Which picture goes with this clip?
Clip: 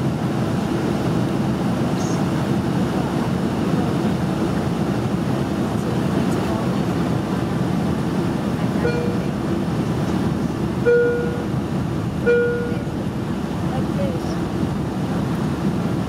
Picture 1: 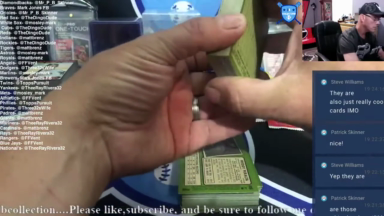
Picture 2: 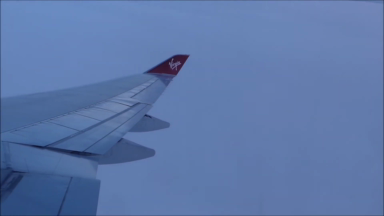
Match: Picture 2